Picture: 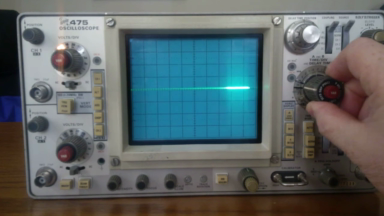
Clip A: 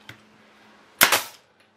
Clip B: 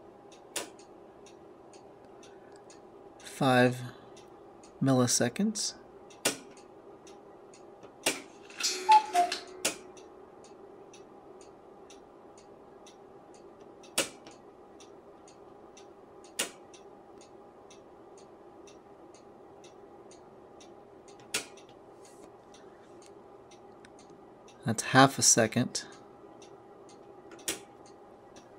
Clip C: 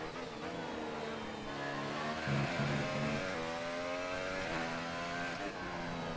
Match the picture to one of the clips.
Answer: B